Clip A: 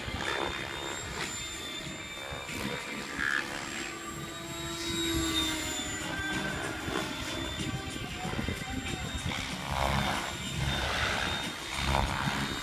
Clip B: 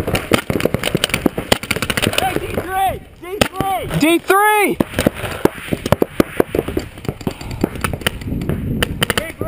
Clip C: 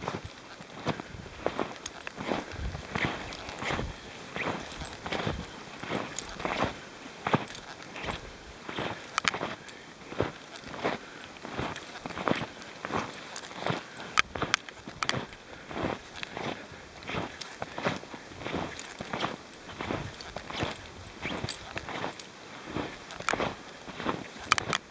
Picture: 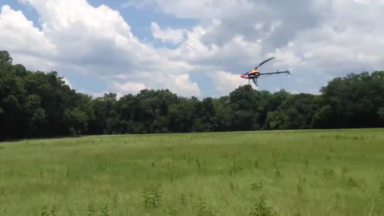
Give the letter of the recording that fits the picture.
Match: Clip A